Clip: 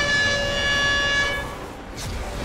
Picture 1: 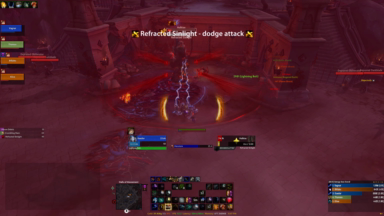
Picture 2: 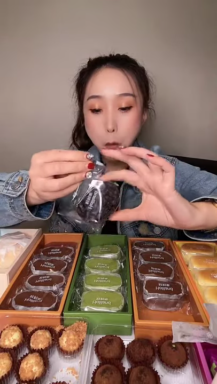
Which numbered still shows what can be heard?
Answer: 1